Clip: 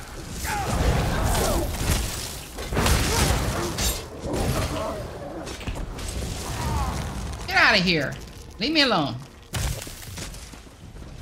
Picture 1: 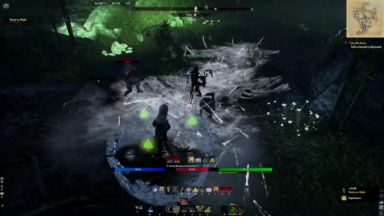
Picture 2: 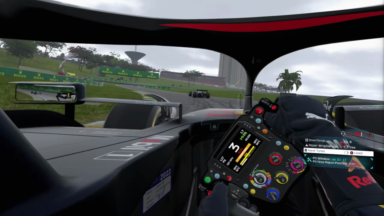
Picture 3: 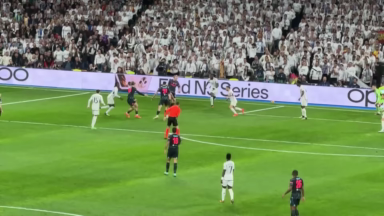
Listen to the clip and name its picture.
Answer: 1